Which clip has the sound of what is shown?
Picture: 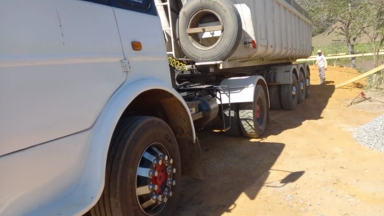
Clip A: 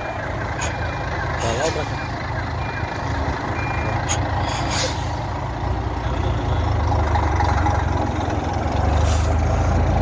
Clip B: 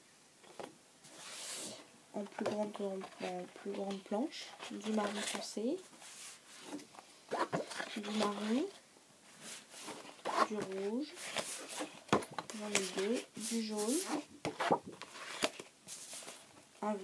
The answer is A